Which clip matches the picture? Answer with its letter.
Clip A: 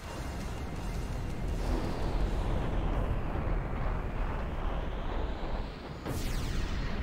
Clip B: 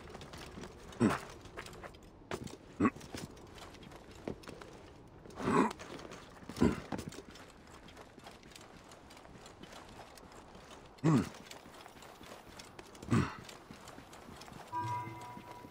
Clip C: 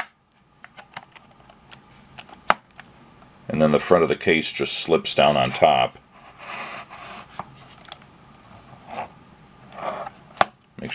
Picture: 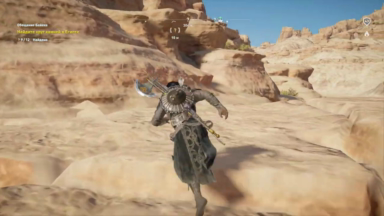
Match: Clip B